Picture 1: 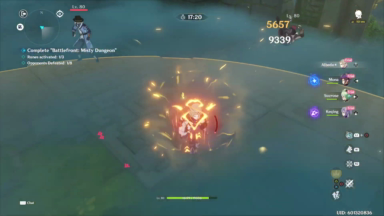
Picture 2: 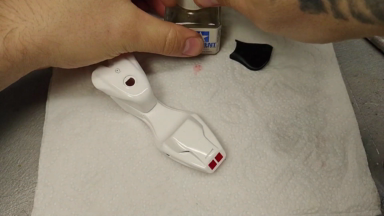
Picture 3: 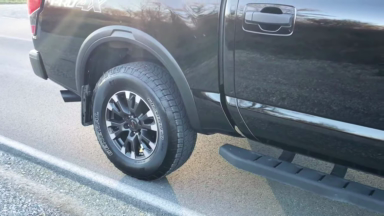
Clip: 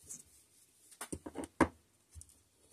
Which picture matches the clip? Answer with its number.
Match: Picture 2